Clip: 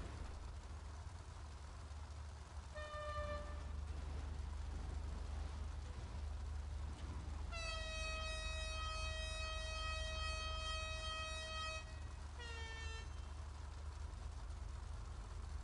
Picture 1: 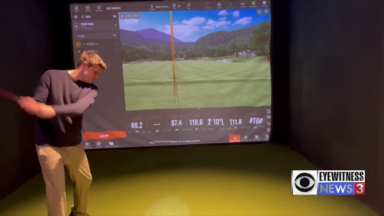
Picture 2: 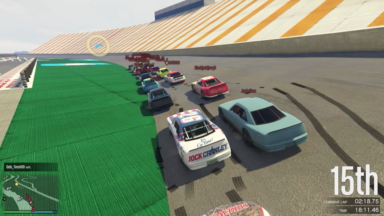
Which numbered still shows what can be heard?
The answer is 2